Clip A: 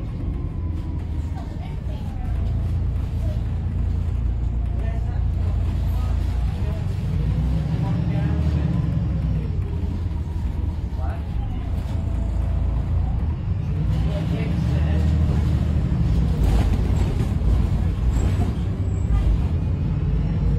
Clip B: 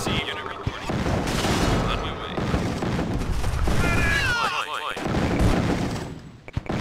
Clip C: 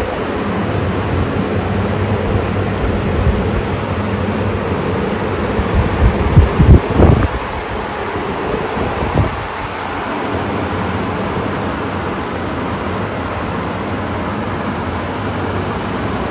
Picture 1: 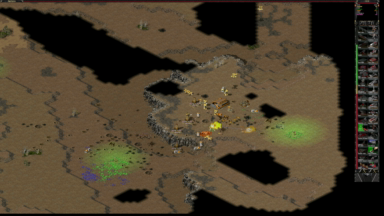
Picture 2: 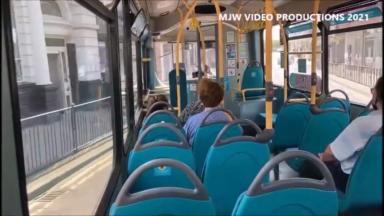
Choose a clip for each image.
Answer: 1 B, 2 A